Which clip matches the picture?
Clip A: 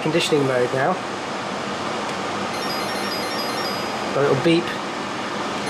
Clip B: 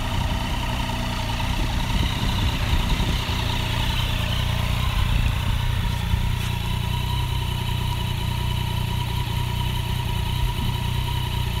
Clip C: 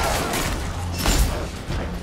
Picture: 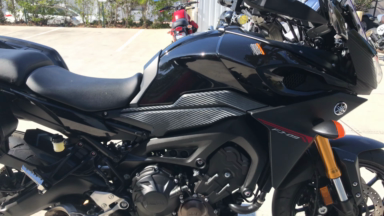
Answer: B